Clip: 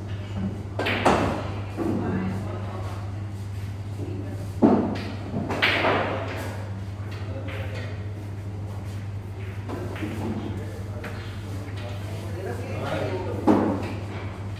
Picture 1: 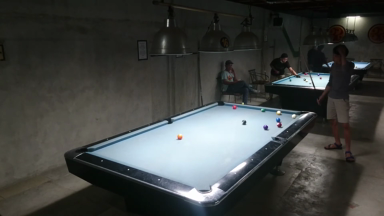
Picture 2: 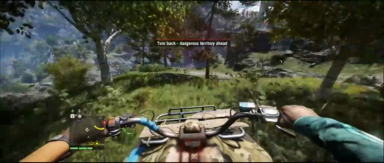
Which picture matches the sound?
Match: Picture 1